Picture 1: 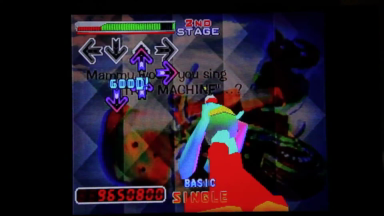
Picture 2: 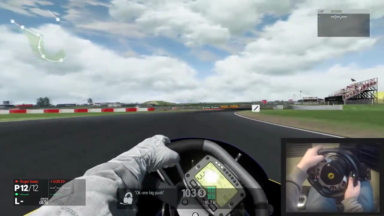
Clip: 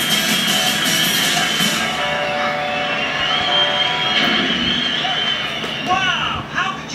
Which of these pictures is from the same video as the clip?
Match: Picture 1